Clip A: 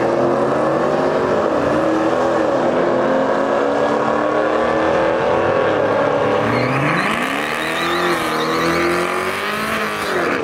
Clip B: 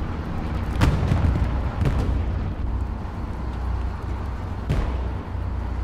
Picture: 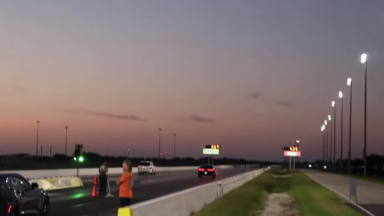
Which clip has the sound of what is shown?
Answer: A